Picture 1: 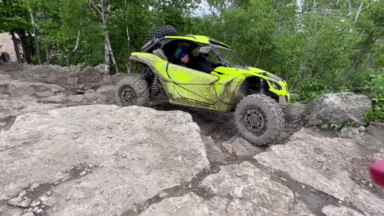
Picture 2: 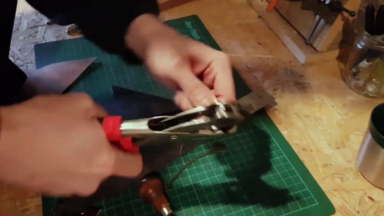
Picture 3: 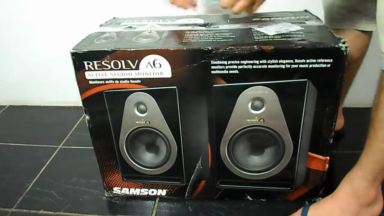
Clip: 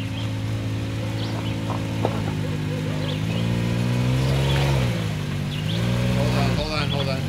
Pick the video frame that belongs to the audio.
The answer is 1